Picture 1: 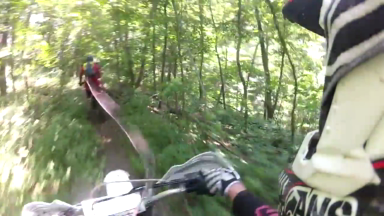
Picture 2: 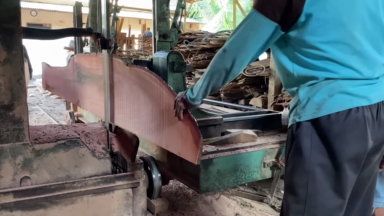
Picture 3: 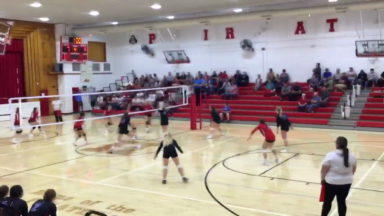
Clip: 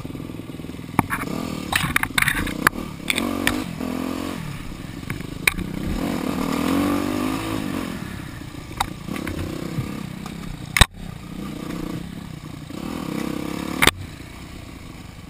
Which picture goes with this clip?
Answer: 1